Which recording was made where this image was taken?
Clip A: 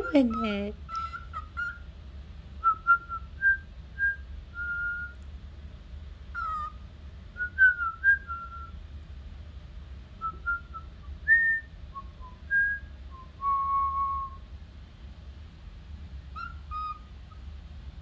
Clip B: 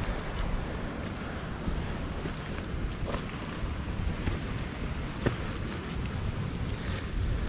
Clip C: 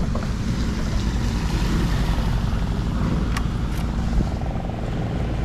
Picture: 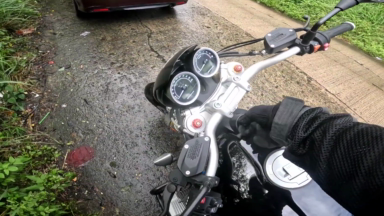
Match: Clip C